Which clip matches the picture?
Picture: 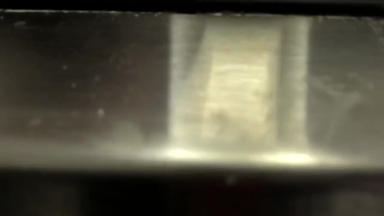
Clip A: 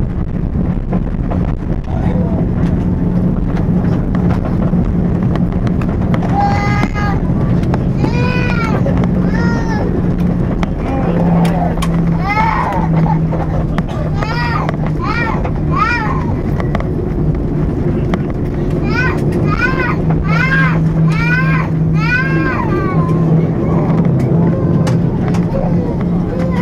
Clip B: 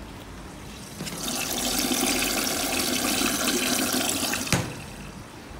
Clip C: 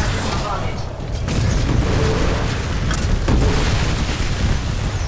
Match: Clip B